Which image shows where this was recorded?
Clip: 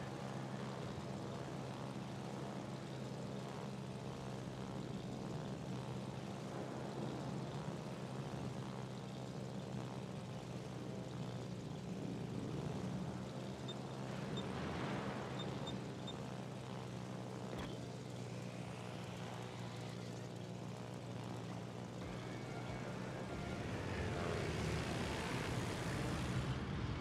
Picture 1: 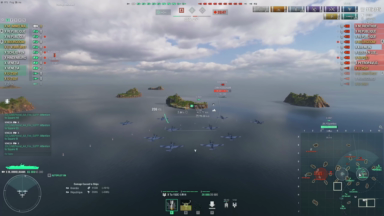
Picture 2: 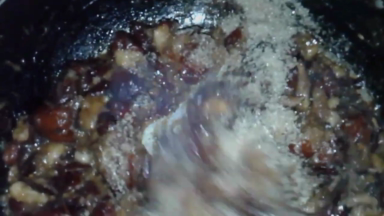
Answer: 1